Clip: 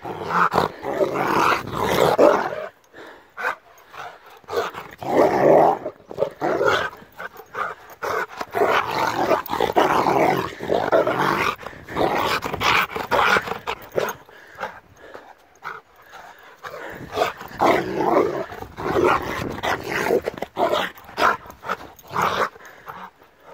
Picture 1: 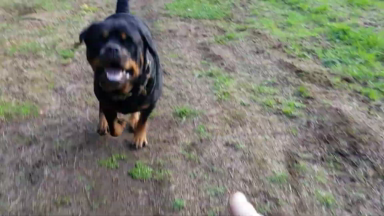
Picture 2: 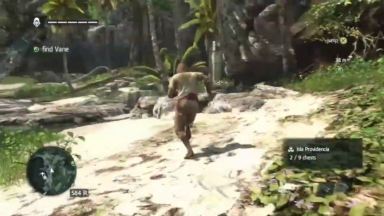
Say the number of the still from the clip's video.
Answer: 1